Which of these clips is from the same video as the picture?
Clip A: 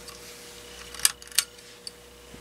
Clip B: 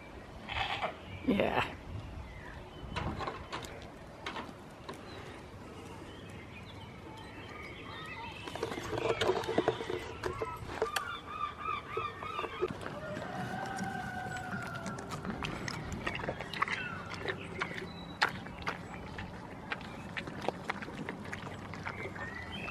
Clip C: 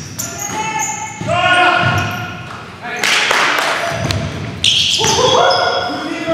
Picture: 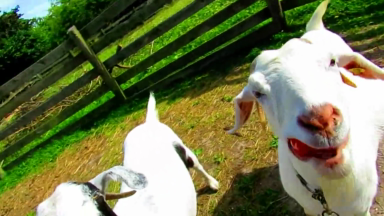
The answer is B